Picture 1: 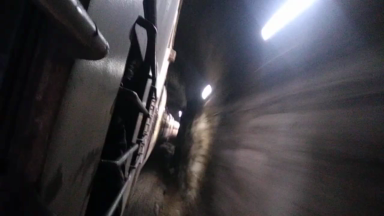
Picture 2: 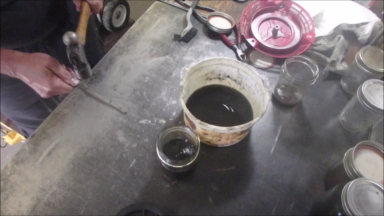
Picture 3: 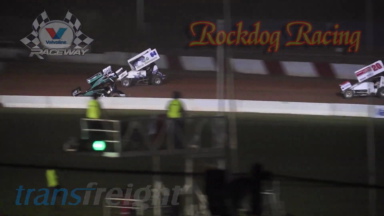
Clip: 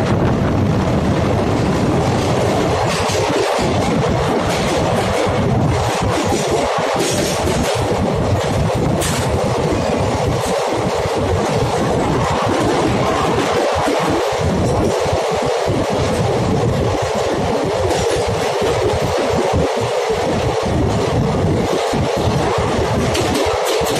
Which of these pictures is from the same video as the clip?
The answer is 1